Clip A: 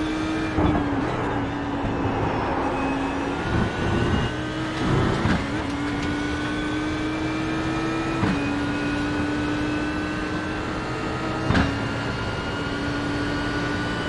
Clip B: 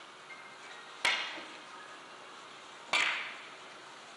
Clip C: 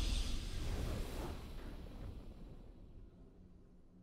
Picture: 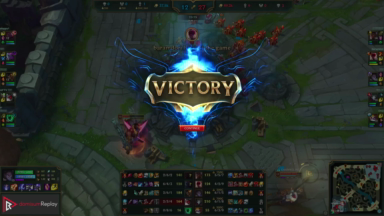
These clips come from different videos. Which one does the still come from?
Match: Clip C